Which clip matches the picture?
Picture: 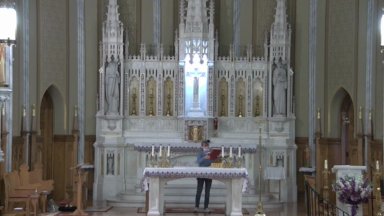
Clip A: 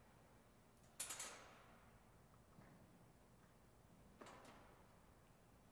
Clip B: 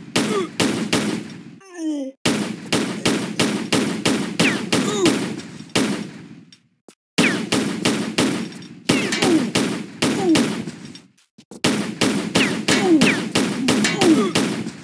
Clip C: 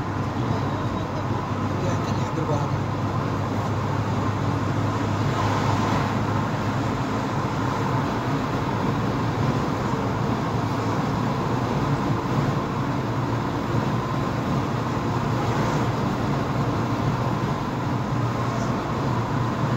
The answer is A